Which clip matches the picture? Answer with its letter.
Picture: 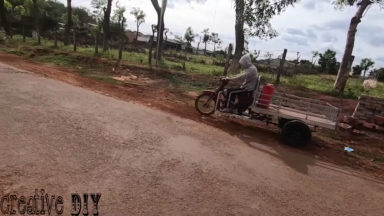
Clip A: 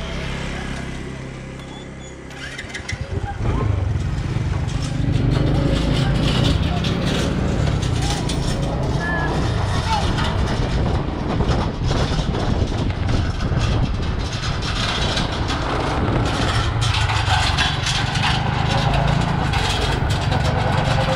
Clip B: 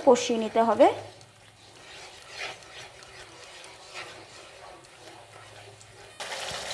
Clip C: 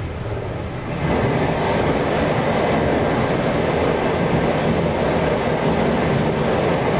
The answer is A